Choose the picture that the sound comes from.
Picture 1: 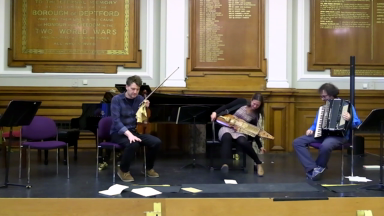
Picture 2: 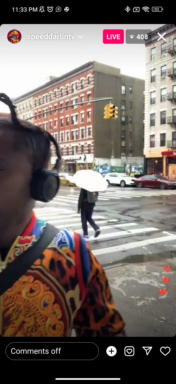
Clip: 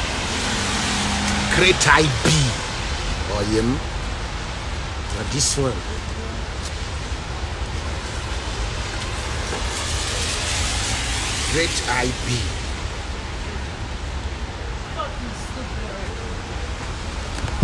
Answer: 2